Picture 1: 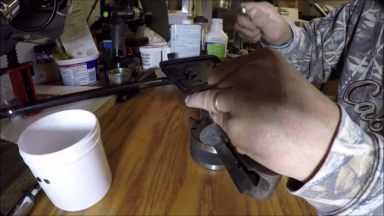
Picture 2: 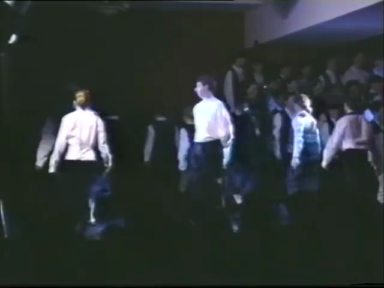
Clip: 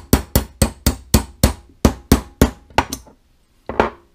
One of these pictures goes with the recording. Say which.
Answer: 1